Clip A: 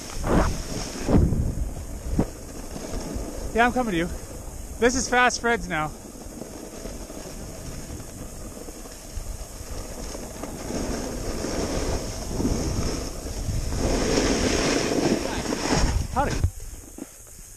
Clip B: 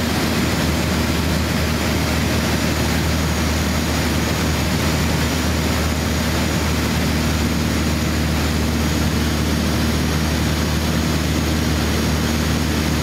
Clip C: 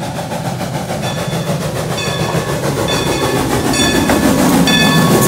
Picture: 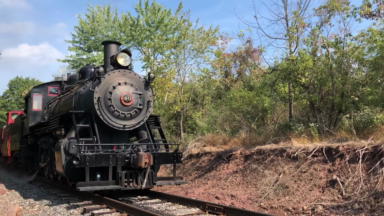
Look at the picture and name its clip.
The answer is C